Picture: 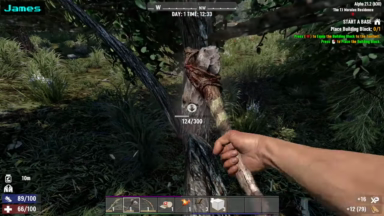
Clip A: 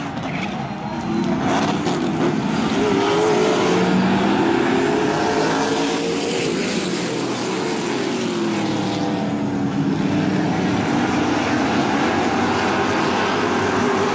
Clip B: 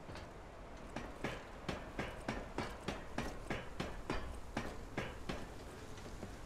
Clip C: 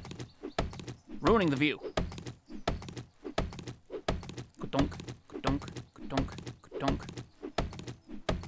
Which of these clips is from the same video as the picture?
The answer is C